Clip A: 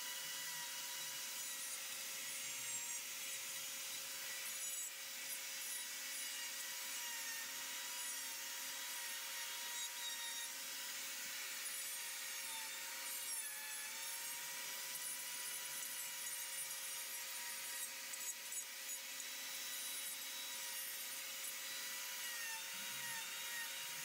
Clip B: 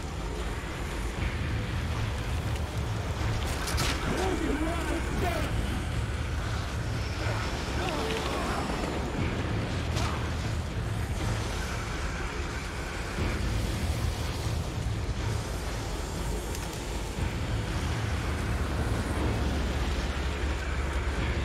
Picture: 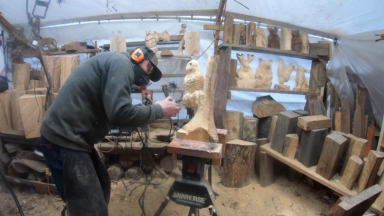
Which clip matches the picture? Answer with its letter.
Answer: A